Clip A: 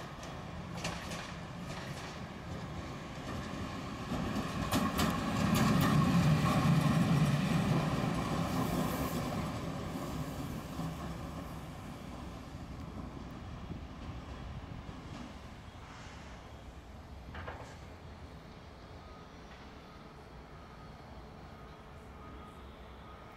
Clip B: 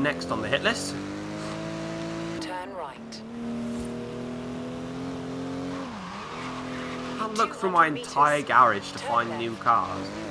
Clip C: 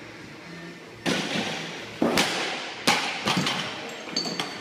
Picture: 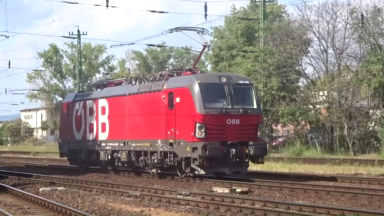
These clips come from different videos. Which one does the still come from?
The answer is A